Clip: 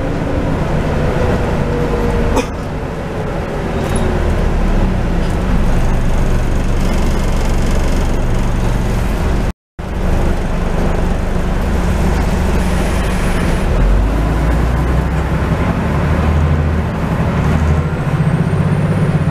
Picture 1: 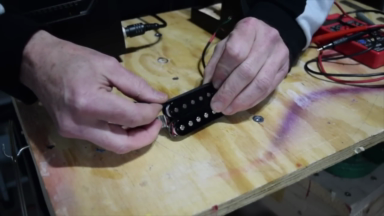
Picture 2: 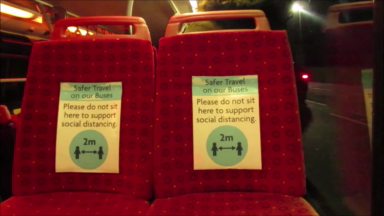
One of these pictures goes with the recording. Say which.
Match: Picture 2